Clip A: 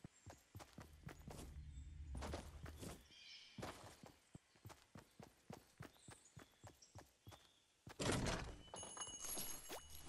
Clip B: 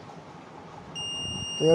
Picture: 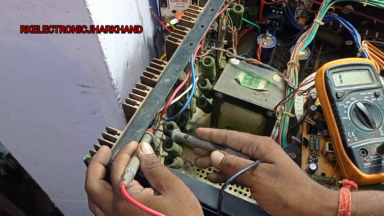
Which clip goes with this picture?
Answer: B